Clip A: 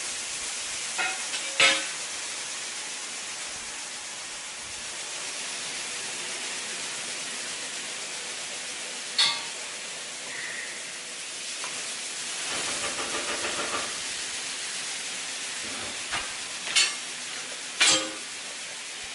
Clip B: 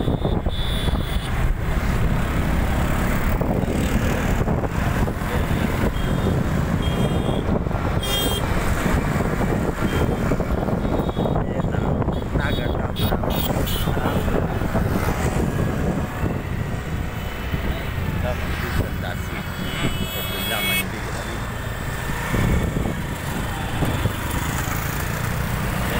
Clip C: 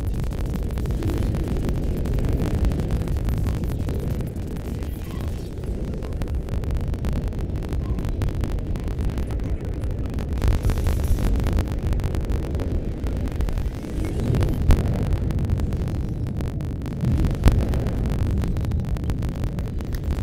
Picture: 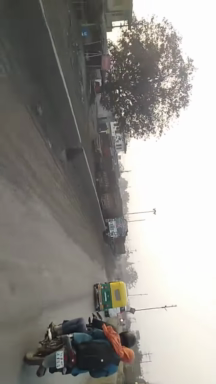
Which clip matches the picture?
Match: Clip B